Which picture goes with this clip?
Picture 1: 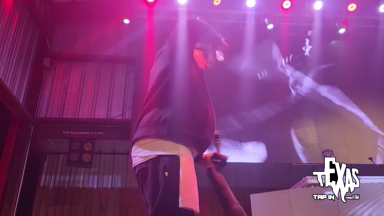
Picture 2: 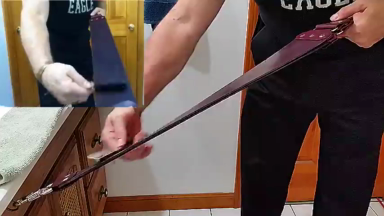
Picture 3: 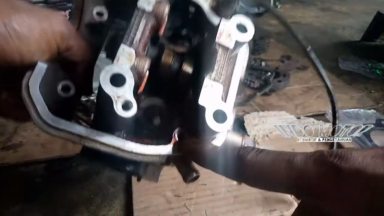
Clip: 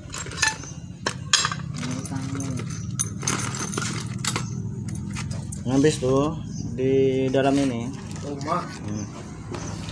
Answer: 3